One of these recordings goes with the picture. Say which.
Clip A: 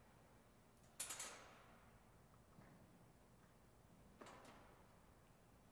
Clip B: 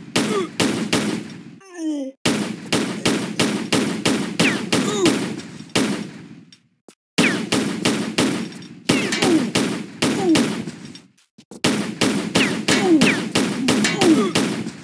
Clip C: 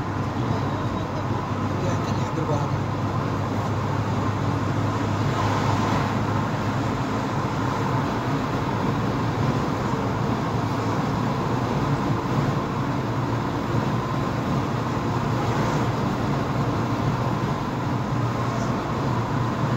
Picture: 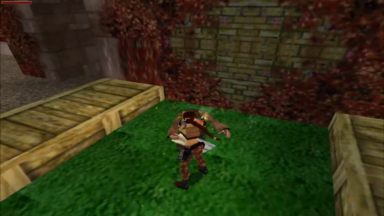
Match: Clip B